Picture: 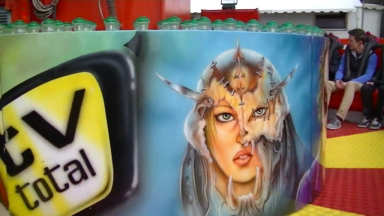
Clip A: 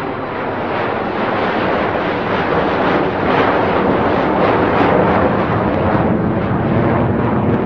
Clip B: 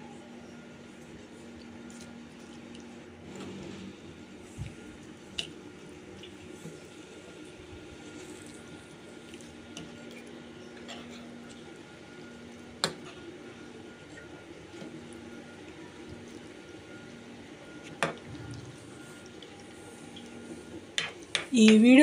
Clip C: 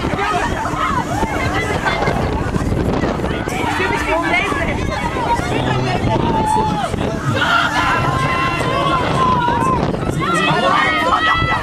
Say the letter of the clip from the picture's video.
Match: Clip C